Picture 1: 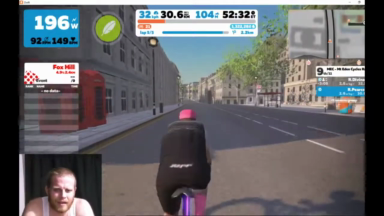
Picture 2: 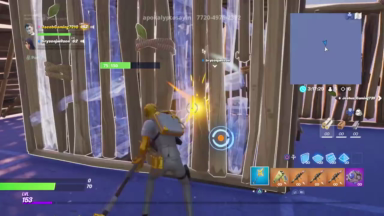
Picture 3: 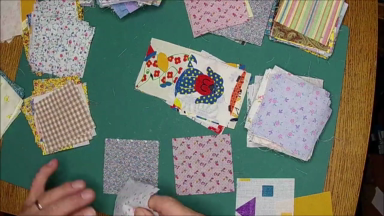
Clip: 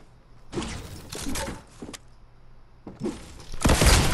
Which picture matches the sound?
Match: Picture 2